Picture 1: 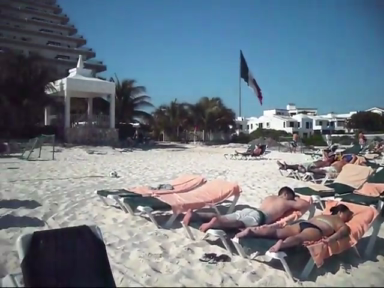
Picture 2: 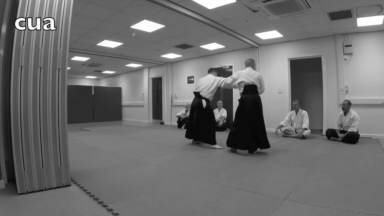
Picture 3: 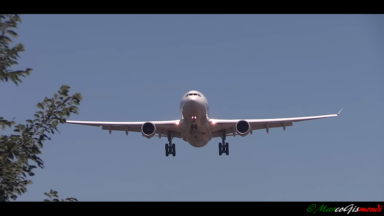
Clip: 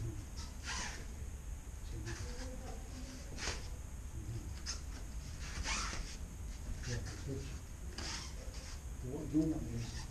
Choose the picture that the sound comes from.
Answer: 2